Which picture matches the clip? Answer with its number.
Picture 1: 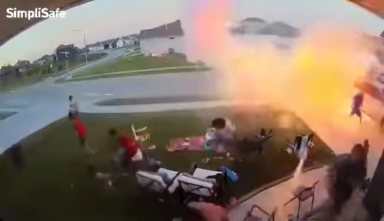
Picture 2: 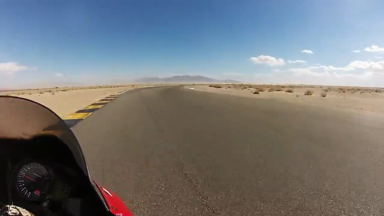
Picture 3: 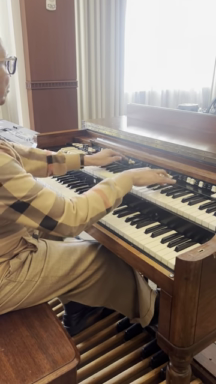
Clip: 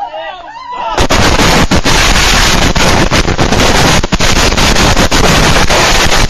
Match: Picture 1